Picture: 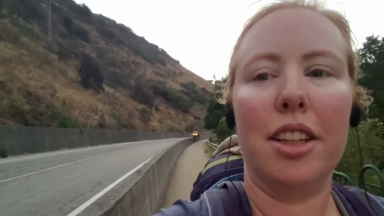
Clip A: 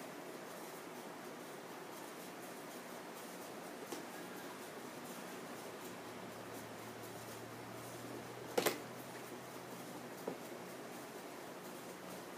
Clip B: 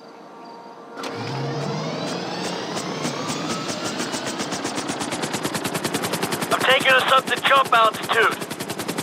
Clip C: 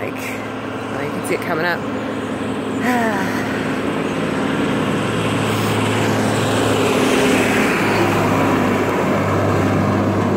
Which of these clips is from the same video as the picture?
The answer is C